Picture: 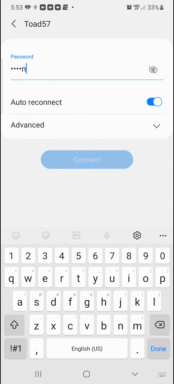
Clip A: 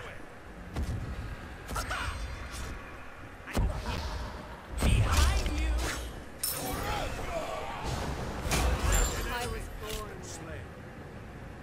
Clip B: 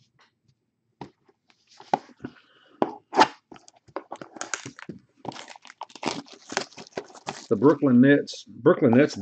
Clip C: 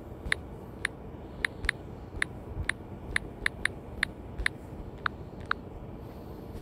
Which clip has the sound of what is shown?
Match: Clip C